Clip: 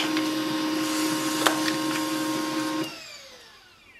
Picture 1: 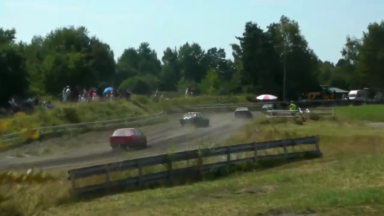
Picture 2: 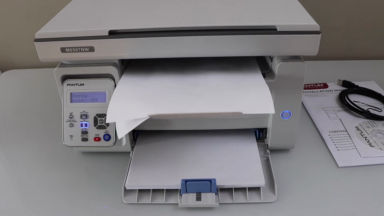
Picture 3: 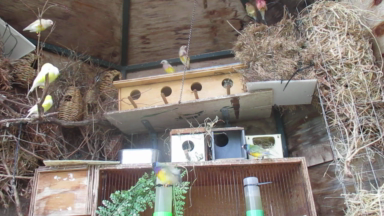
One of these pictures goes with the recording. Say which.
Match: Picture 2